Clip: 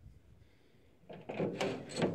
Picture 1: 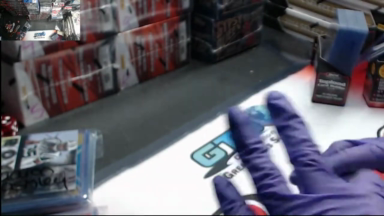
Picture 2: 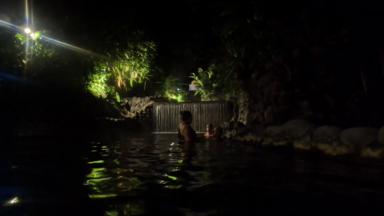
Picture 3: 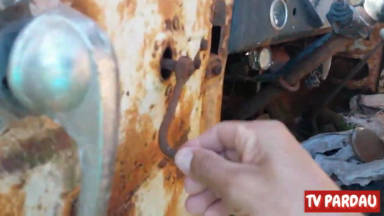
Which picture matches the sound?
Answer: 3